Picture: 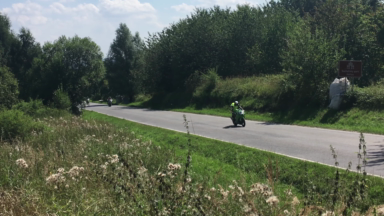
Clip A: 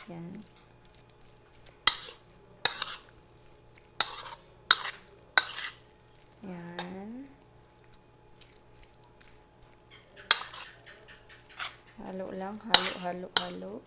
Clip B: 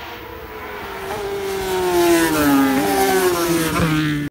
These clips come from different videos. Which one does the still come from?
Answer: B